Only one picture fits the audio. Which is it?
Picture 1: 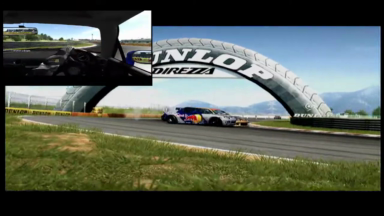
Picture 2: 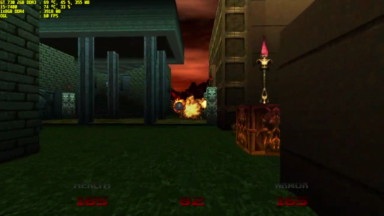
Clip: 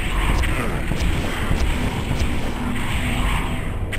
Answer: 2